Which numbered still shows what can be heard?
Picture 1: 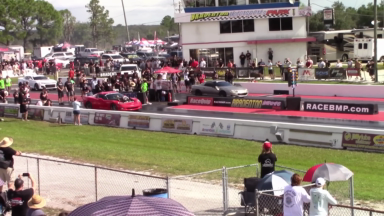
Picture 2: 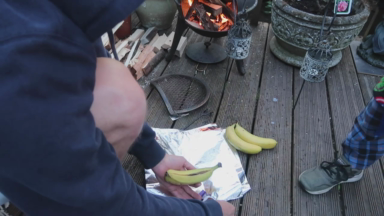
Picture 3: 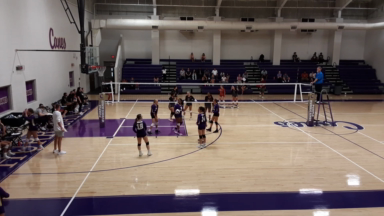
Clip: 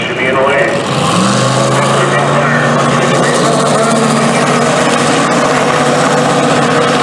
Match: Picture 1